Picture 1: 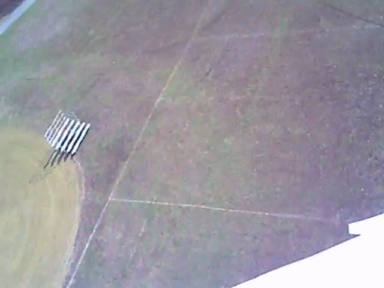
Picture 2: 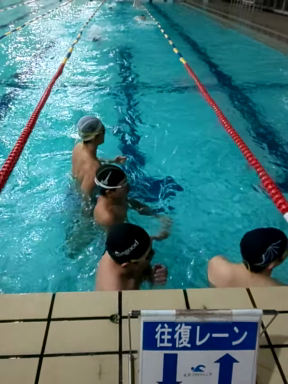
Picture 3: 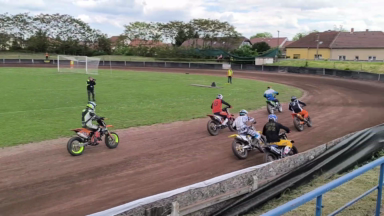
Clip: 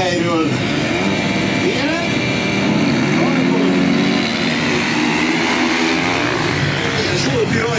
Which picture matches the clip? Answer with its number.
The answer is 3